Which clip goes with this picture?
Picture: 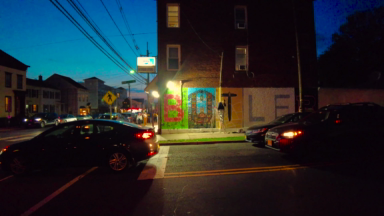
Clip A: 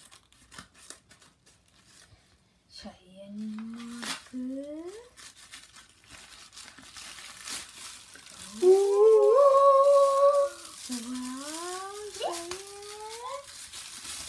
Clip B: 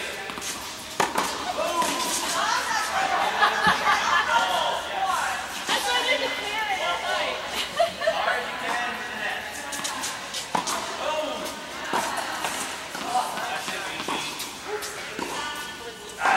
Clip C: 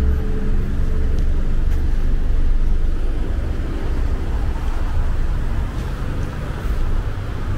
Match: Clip C